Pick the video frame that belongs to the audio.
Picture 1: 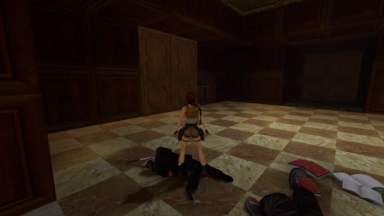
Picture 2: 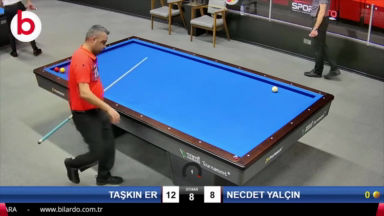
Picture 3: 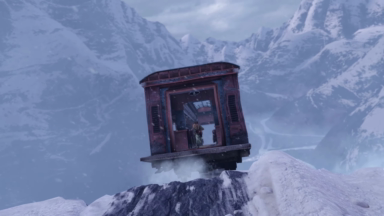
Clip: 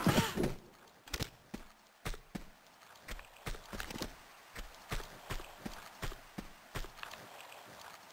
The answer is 1